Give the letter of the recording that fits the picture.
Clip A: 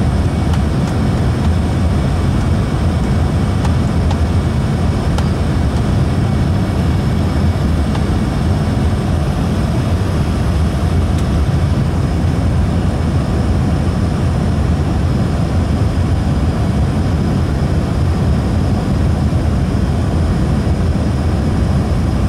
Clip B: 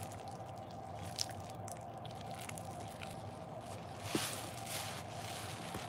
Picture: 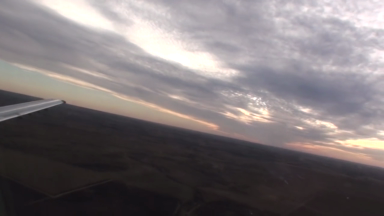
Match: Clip A